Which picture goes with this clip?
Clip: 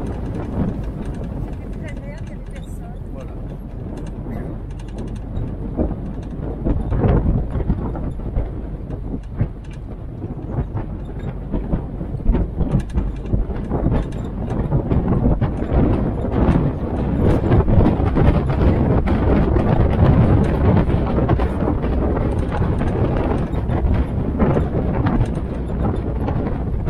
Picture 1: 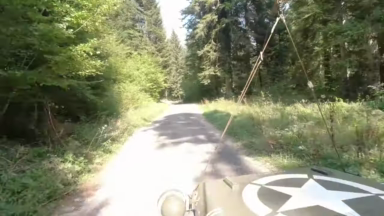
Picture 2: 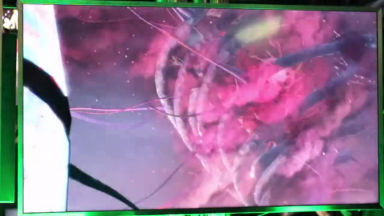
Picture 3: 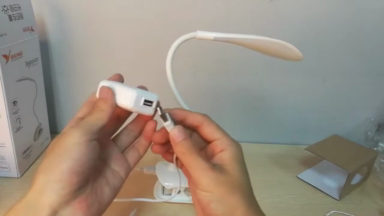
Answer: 1